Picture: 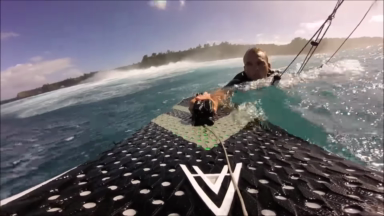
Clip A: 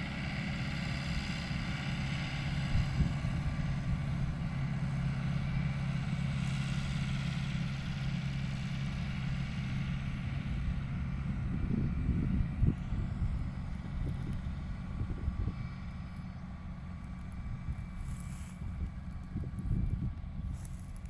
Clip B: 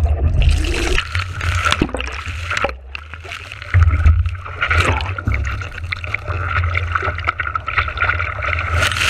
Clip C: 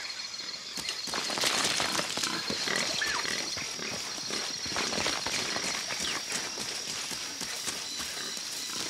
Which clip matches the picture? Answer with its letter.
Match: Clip B